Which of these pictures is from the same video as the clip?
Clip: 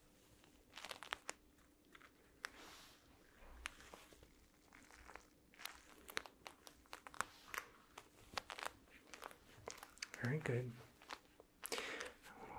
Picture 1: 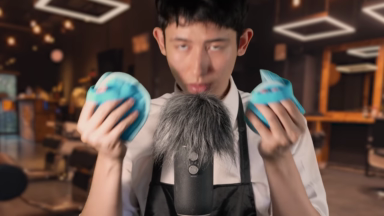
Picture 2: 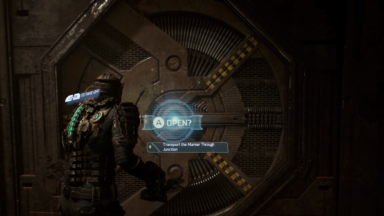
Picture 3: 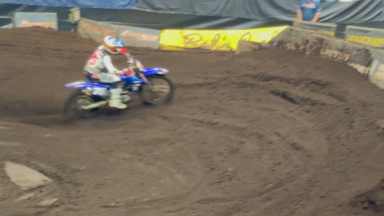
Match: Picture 1